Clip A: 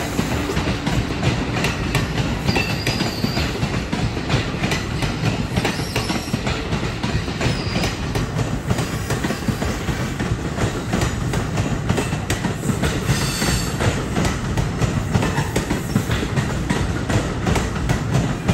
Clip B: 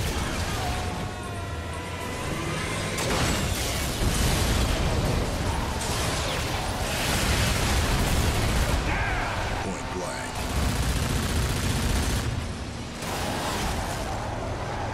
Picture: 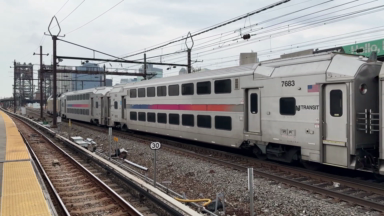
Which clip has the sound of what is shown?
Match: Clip A